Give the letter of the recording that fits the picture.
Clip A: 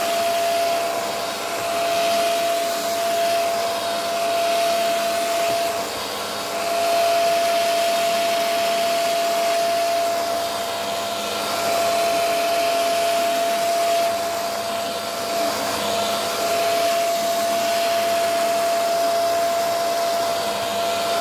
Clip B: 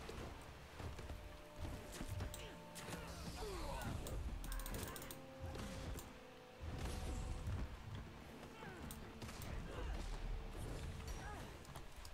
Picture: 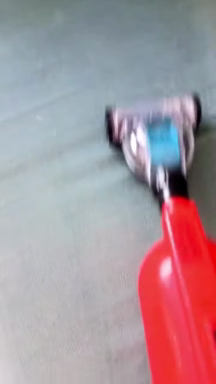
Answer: A